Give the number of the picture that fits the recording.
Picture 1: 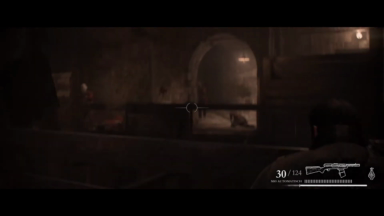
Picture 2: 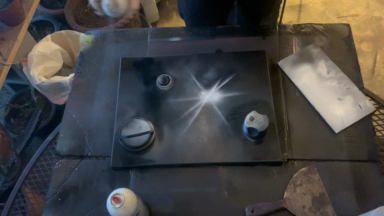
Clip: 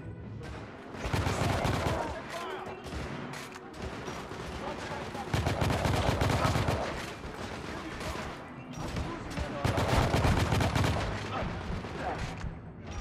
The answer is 1